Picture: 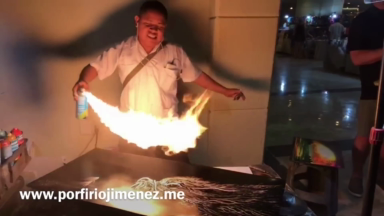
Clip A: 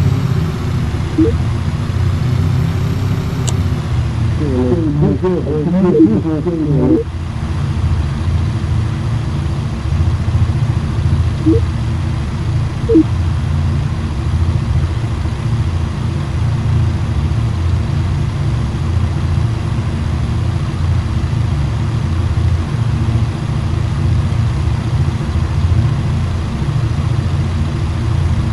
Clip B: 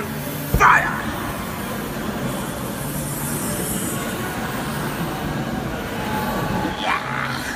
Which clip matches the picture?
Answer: B